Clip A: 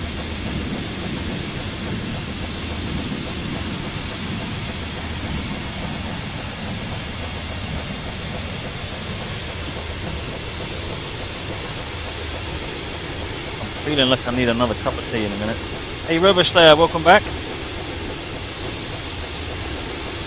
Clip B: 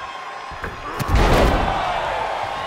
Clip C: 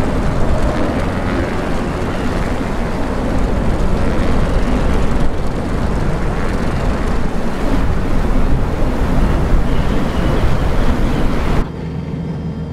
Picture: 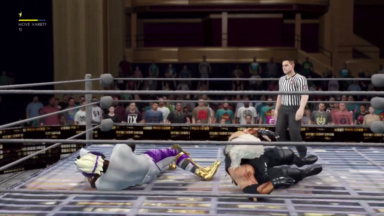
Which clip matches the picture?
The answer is B